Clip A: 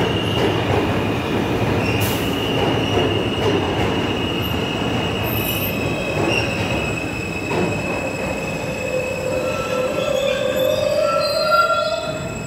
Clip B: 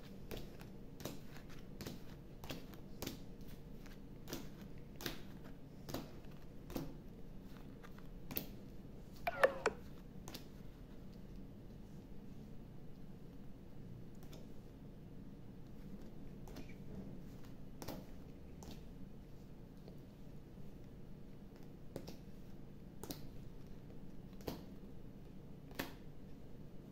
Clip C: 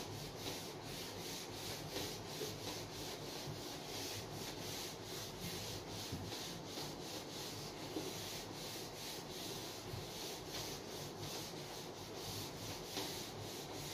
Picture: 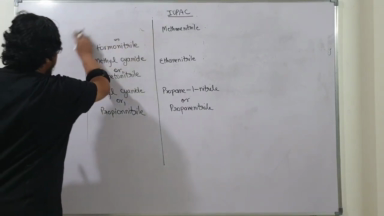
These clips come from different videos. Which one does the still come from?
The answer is C